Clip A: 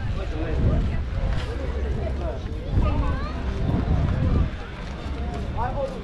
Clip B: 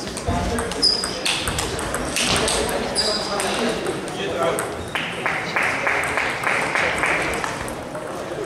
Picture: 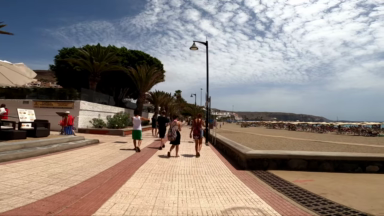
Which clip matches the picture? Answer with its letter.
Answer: A